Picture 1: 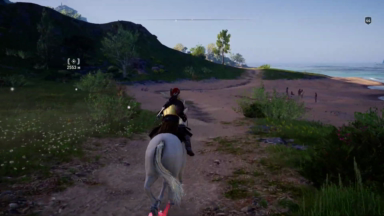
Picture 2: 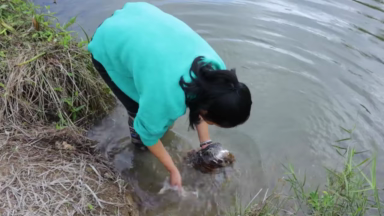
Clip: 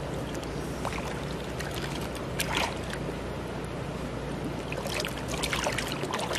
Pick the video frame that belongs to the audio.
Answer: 2